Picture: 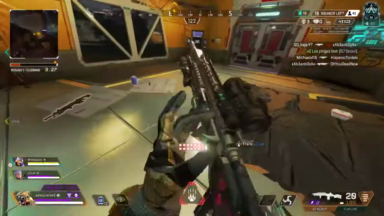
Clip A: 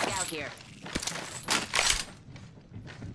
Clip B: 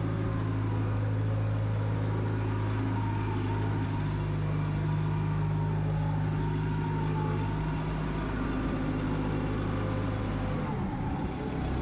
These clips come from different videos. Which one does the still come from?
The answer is A